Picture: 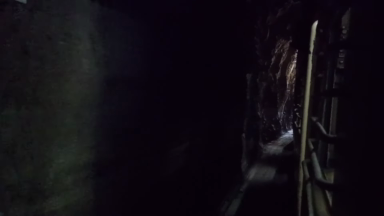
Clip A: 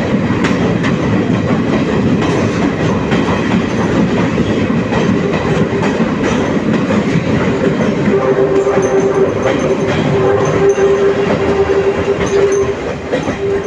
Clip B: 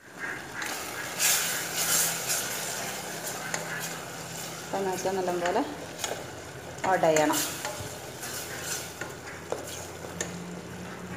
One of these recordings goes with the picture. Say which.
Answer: A